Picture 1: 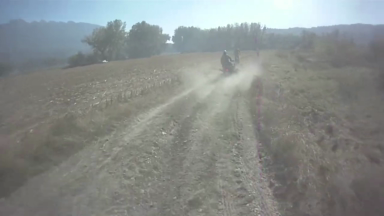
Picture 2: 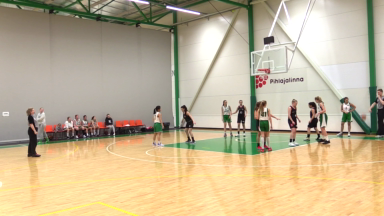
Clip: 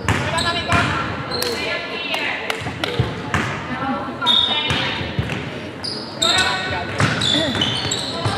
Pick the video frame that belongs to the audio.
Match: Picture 2